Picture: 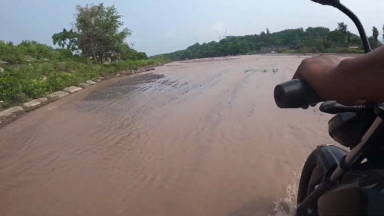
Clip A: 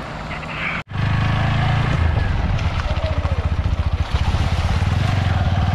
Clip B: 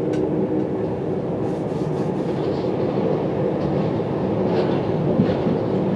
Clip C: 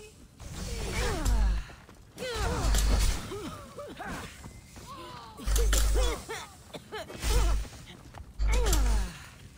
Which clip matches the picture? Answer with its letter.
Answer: A